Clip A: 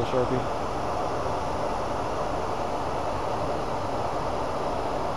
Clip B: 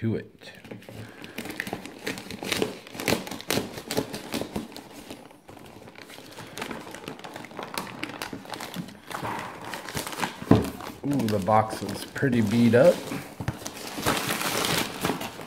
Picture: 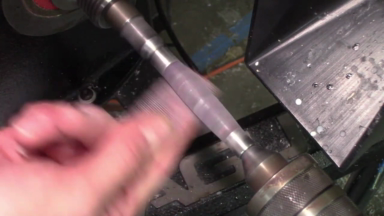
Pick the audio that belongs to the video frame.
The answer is A